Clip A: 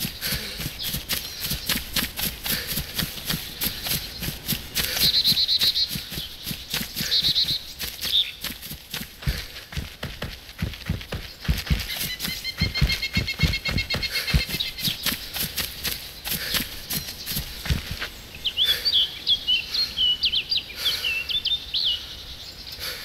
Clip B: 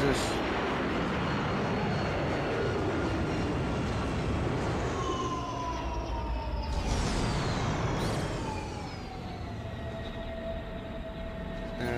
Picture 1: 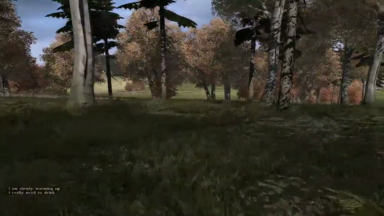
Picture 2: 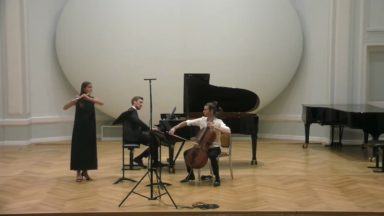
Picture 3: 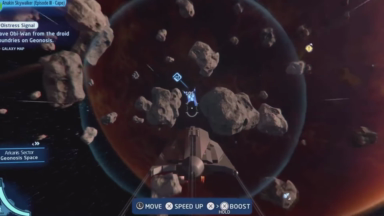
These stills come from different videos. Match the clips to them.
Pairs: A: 1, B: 3